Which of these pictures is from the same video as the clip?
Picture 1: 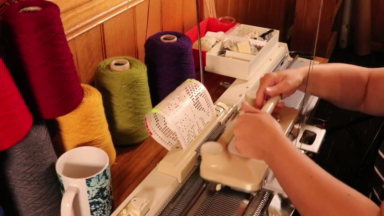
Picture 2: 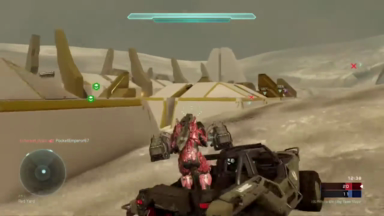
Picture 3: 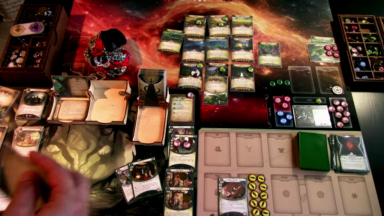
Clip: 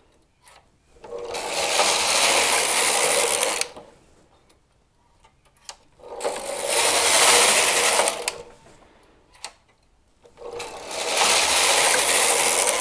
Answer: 1